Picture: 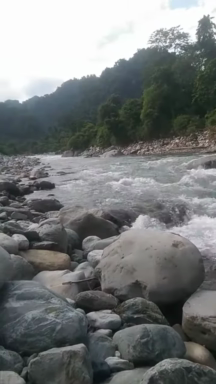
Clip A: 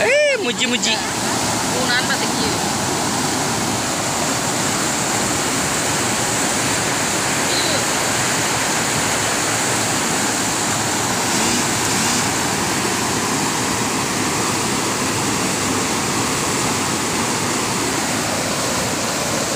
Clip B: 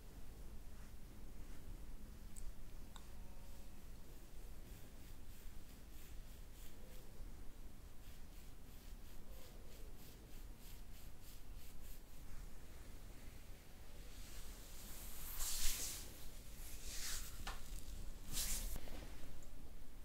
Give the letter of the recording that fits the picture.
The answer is A